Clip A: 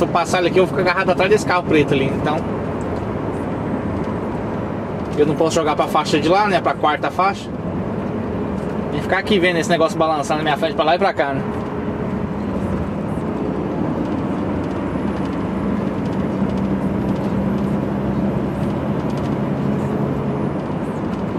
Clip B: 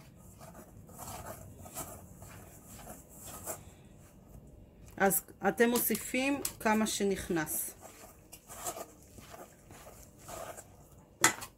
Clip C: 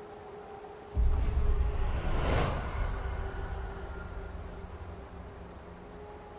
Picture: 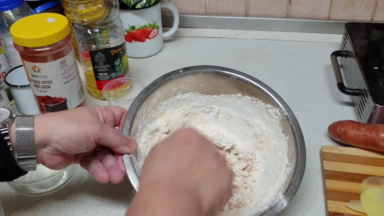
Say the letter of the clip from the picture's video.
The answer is B